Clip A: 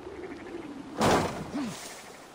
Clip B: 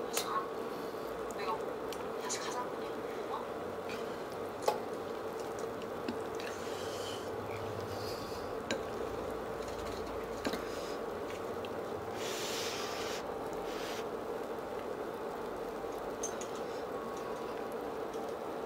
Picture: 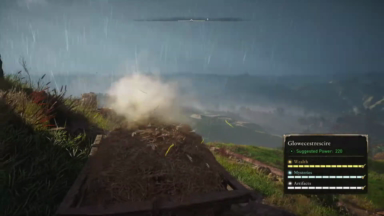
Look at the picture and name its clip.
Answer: A